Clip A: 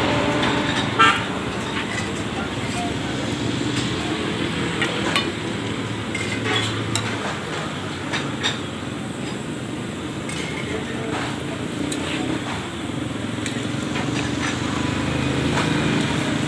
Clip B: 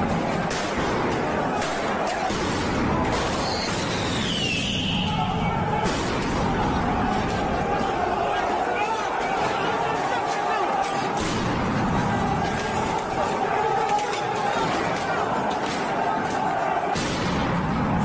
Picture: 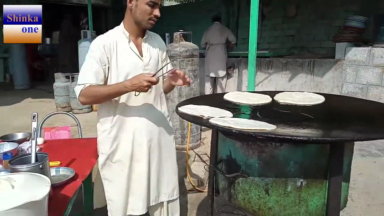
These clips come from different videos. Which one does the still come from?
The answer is A